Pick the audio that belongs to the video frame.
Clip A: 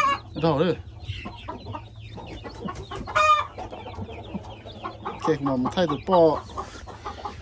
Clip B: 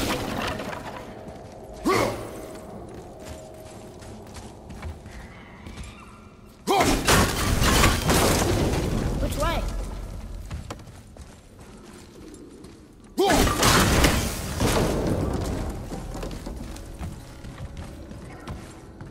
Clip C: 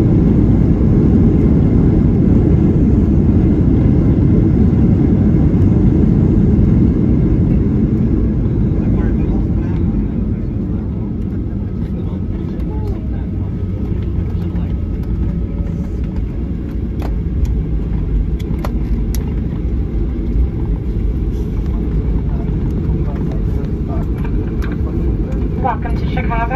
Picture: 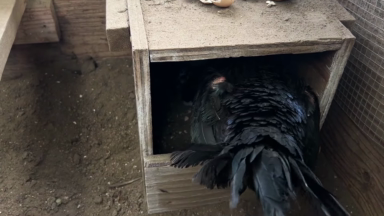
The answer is A